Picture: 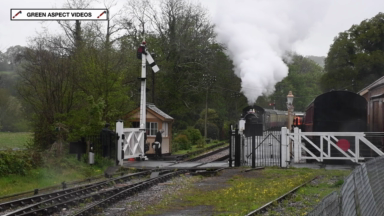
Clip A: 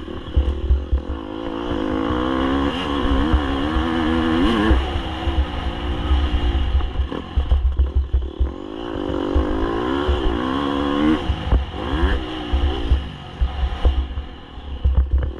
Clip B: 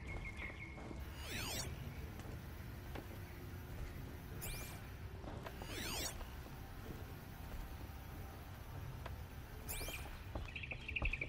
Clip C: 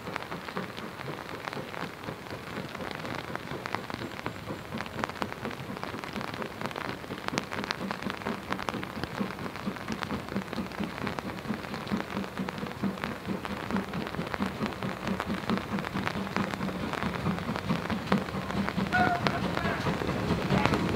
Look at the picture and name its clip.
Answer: C